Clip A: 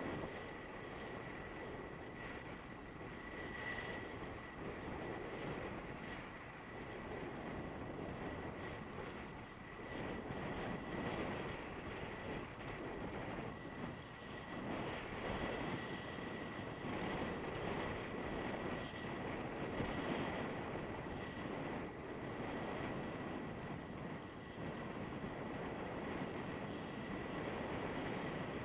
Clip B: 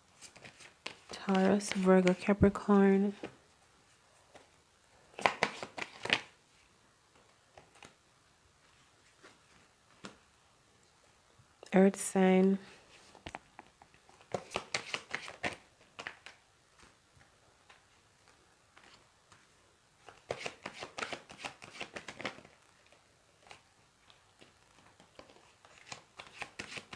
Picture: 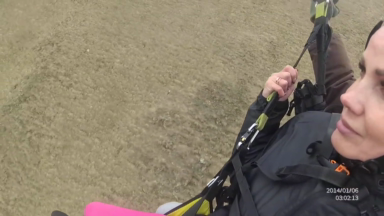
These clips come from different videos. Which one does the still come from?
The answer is A